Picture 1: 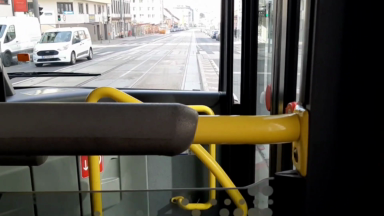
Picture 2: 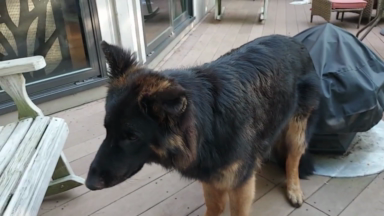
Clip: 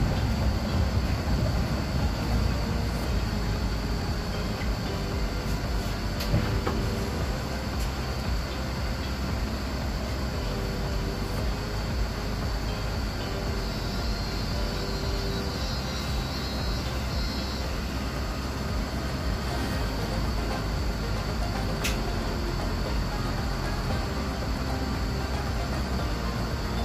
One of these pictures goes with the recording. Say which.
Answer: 1